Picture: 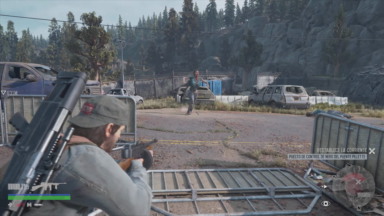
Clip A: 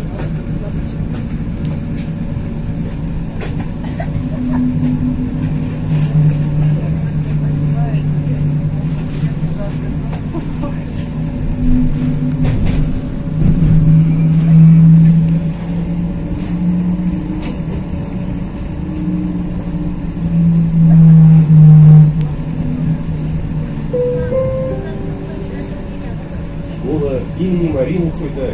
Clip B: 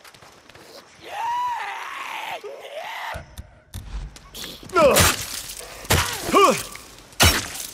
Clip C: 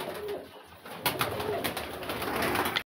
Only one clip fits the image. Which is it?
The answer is B